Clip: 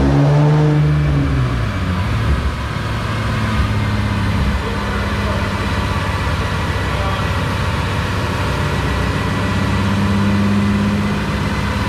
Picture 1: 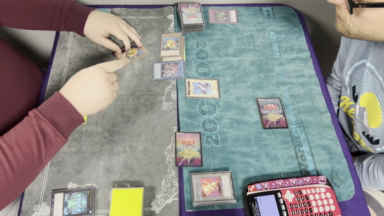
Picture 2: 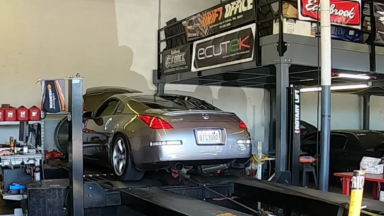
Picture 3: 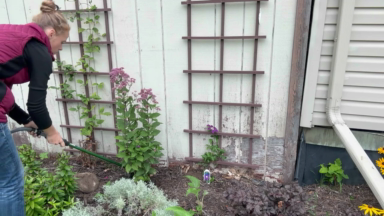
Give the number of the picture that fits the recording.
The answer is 2